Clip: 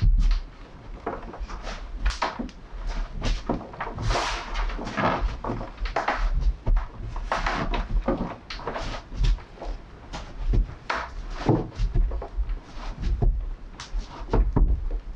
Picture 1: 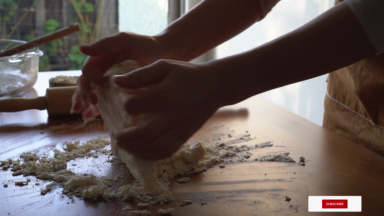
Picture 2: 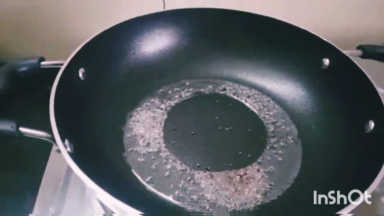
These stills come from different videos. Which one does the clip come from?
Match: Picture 1